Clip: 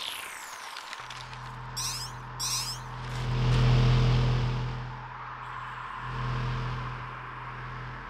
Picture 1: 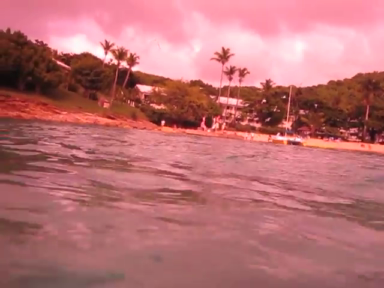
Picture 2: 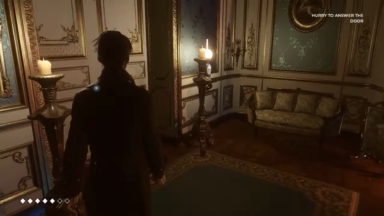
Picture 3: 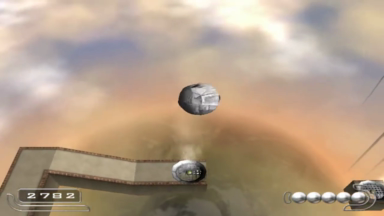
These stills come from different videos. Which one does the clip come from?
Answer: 3